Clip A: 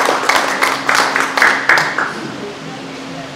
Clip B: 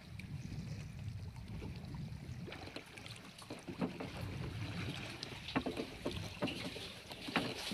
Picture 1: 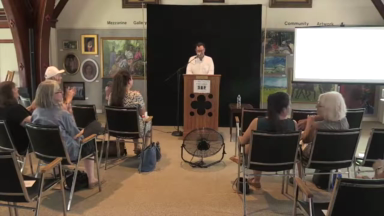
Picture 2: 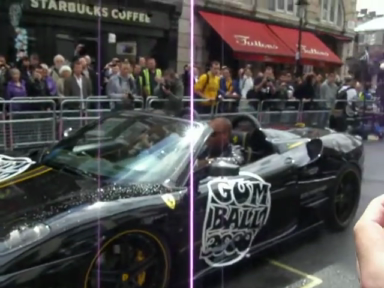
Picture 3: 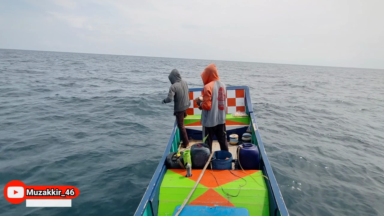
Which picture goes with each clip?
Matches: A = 1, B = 3